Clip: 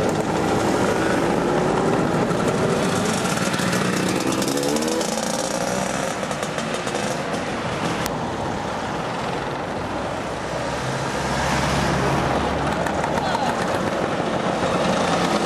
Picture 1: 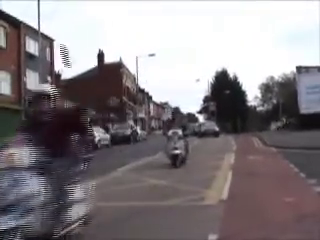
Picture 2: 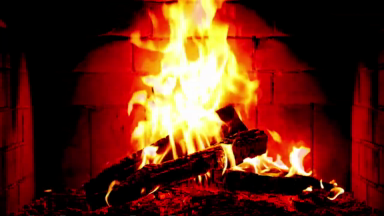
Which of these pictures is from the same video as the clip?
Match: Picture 1